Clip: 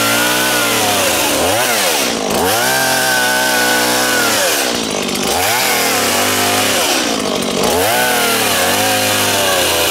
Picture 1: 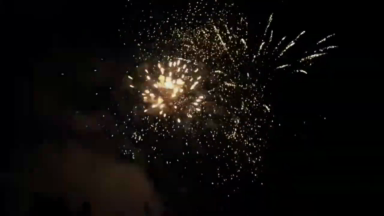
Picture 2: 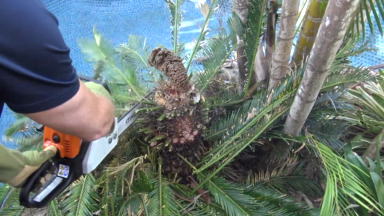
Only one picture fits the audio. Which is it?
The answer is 2